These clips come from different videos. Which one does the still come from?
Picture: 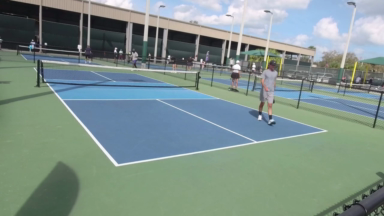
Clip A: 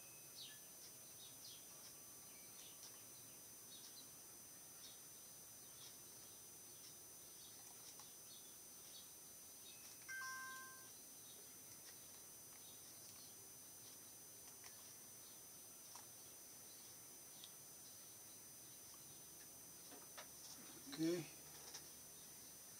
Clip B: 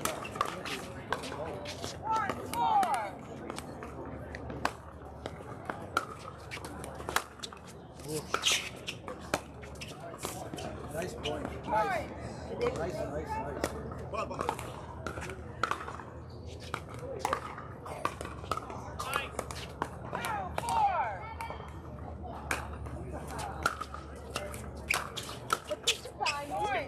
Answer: B